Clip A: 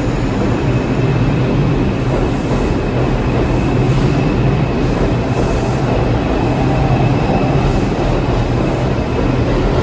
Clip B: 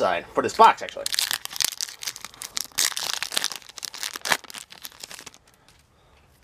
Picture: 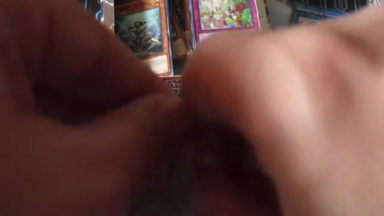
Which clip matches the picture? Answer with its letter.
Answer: B